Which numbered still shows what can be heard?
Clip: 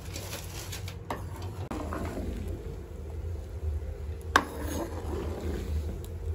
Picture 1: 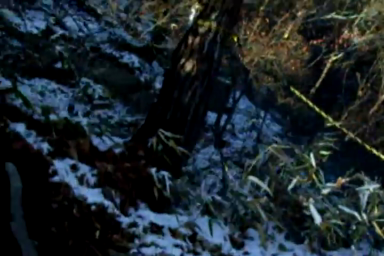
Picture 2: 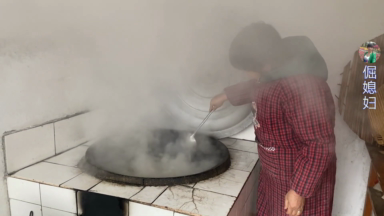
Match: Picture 2